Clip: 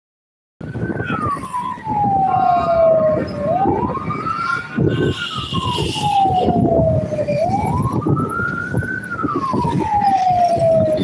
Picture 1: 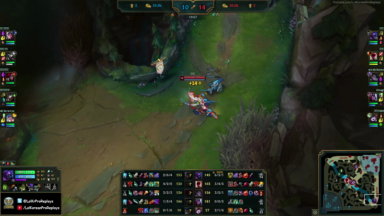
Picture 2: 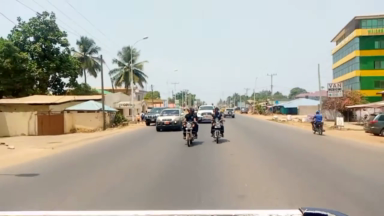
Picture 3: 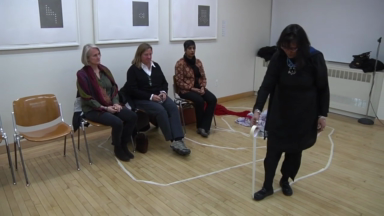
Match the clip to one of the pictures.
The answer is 2